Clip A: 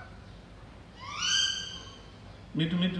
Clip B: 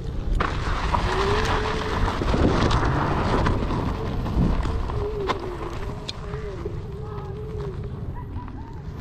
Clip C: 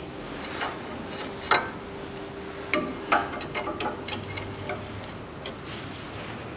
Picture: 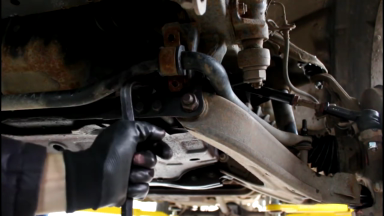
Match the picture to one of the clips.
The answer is C